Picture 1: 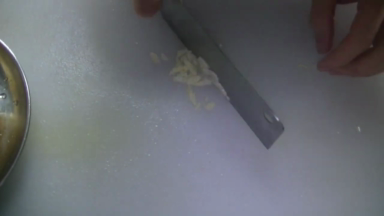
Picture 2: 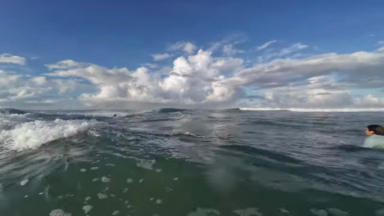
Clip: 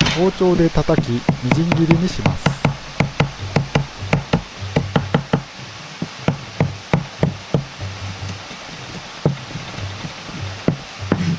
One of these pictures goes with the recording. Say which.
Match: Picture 1